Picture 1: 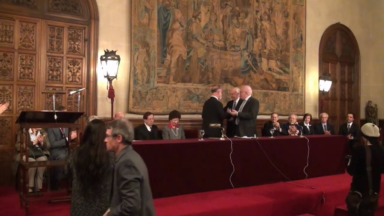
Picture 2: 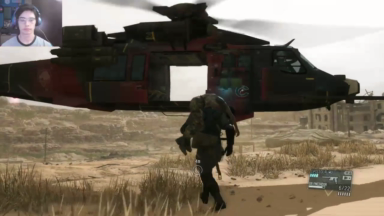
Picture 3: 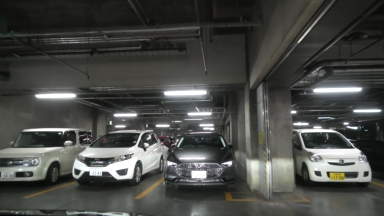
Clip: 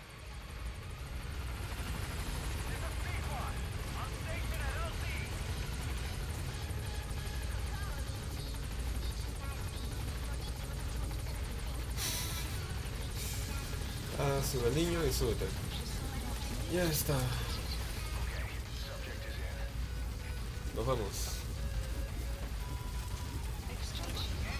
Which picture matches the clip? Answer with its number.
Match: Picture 2